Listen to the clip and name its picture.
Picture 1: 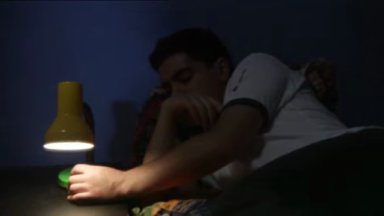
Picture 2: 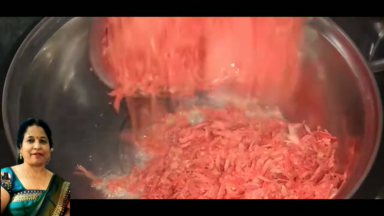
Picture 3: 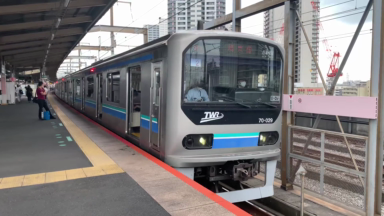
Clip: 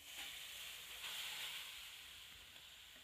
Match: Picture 2